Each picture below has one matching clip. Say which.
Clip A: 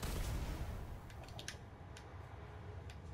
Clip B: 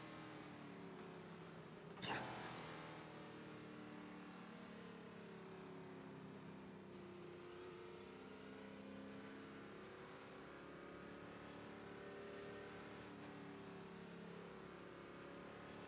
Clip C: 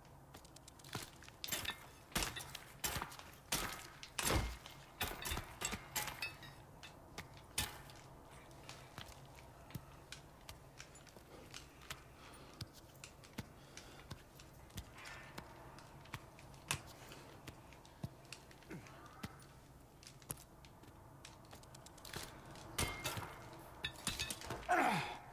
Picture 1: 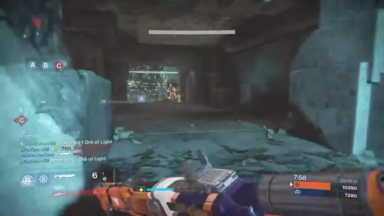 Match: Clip A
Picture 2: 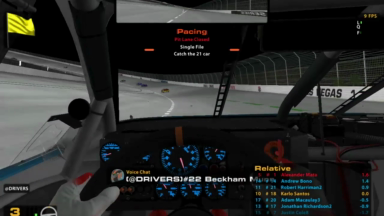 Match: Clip B